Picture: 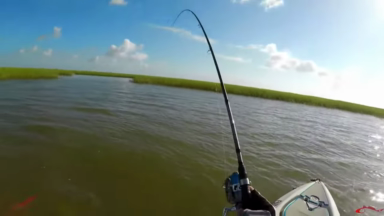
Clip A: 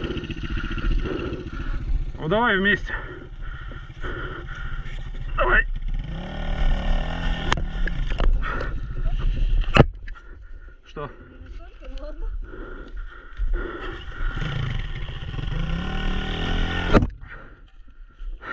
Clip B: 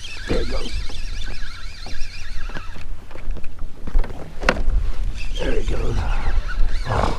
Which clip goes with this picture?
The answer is B